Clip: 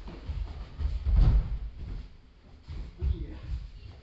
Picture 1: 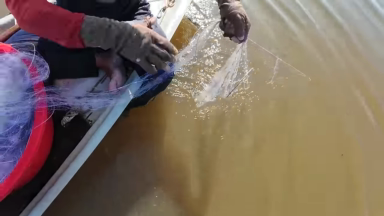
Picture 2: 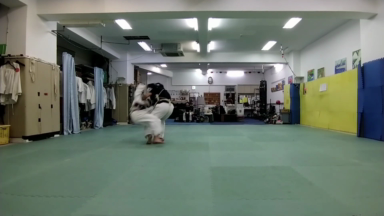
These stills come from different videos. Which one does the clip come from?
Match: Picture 2